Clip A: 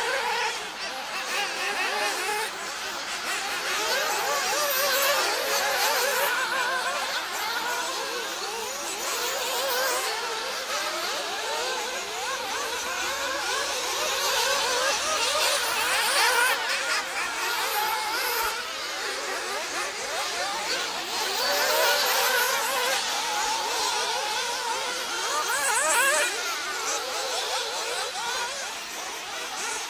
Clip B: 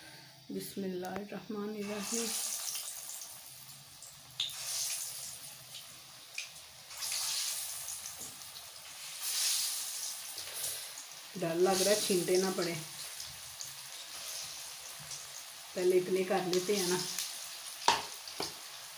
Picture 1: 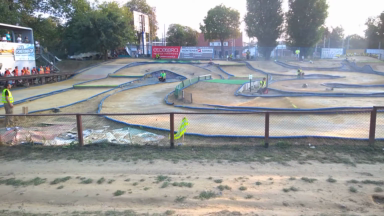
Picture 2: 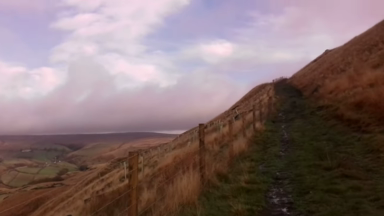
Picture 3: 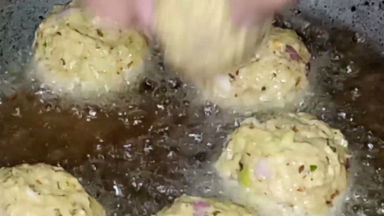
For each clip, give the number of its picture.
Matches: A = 1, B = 3